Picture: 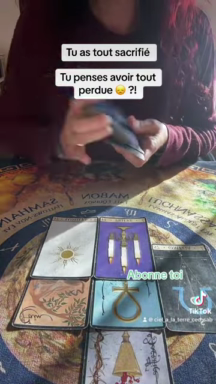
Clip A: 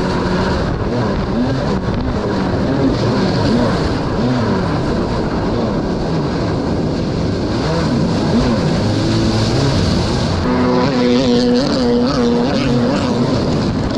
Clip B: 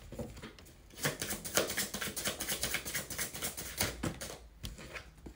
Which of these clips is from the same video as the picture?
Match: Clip B